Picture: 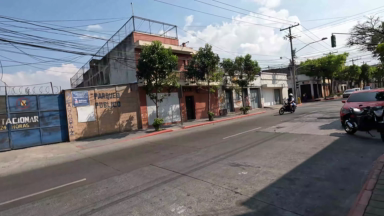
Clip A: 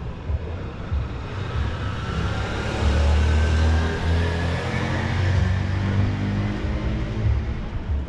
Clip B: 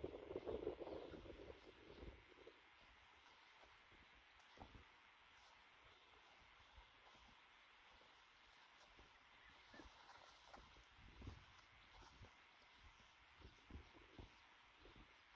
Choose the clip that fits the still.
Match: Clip A